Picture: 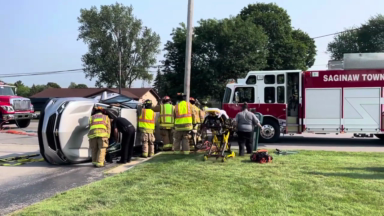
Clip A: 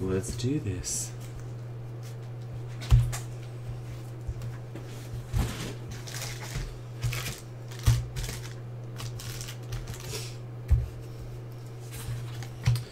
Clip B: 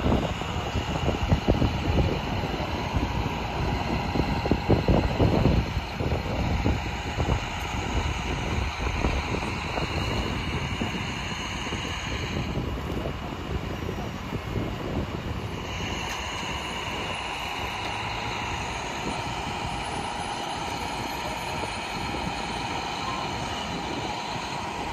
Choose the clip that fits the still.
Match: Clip B